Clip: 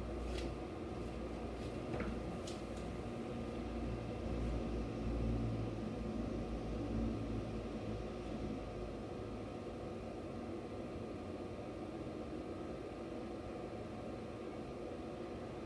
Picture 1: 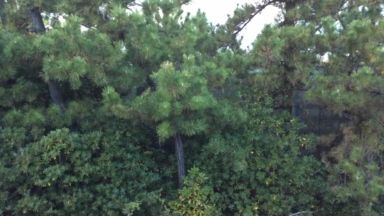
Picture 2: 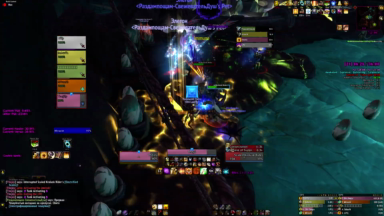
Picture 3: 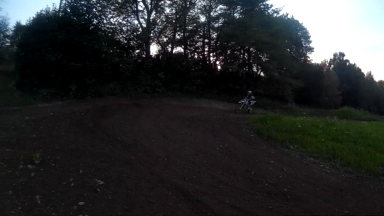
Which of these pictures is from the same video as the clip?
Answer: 1